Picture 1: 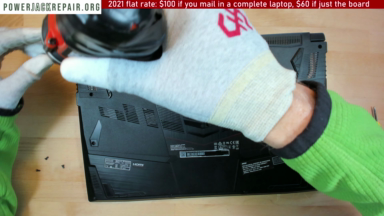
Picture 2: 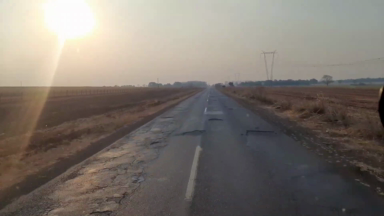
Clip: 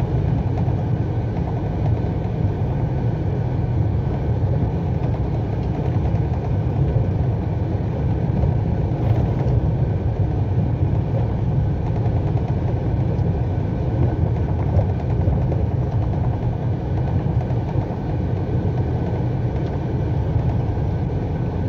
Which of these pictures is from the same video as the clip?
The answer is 2